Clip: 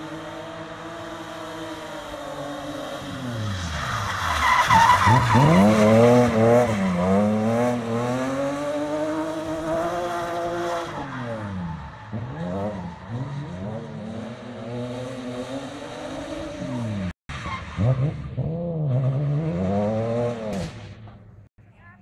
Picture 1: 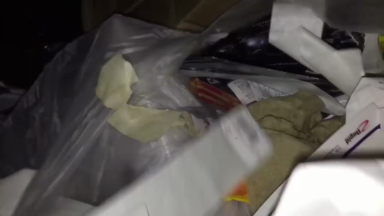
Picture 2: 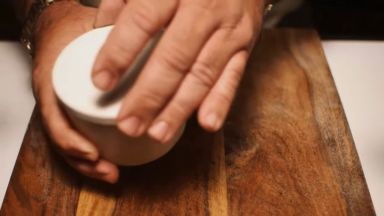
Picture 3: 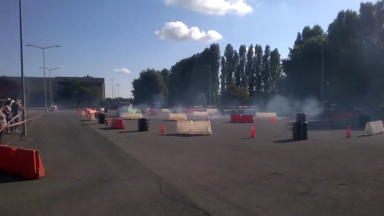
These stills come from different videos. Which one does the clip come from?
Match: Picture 3